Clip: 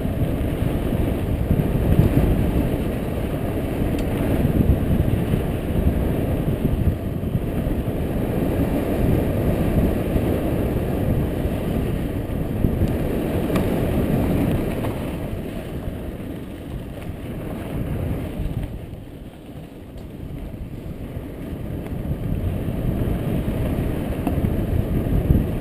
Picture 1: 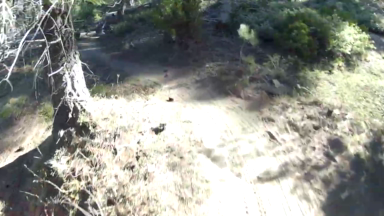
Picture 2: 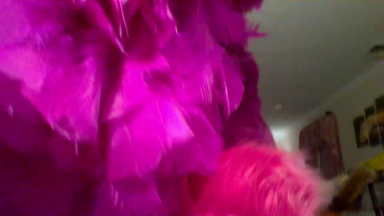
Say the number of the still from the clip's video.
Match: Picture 1